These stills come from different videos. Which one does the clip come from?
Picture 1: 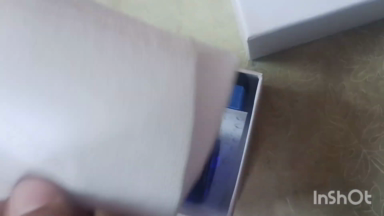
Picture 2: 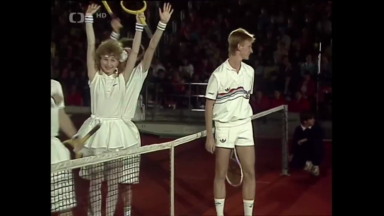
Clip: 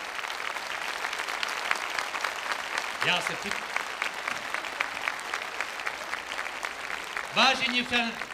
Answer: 2